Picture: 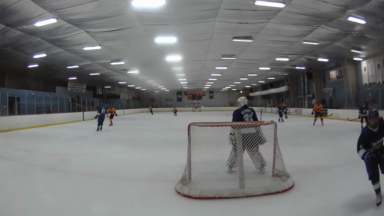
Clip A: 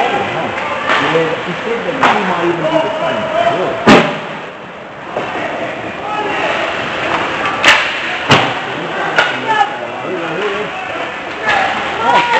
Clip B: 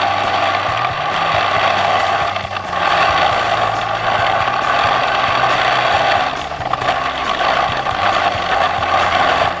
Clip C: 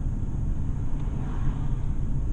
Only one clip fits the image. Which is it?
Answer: A